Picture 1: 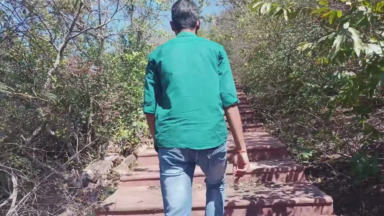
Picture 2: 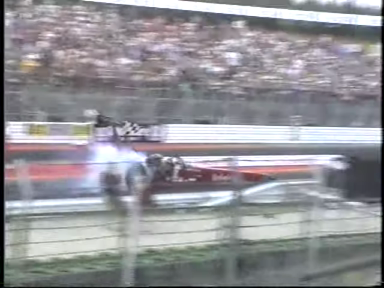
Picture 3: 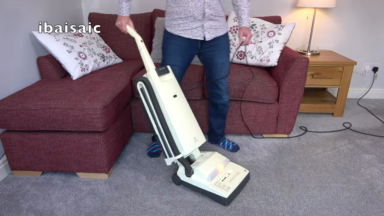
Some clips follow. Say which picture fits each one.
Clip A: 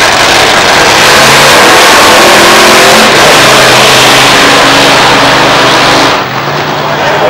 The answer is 2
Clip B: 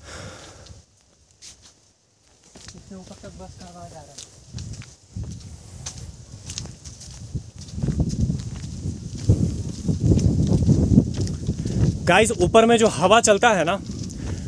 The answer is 1